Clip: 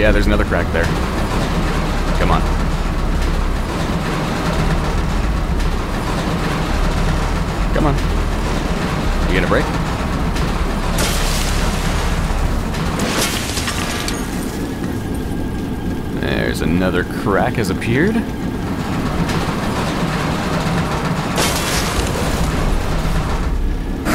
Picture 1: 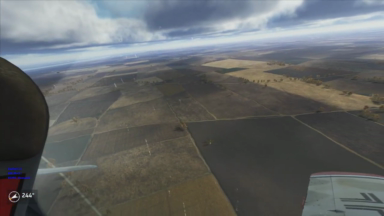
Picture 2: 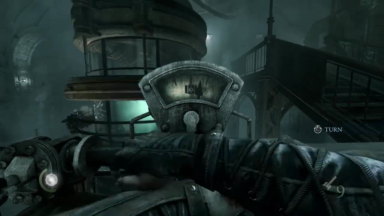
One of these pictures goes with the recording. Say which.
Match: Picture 2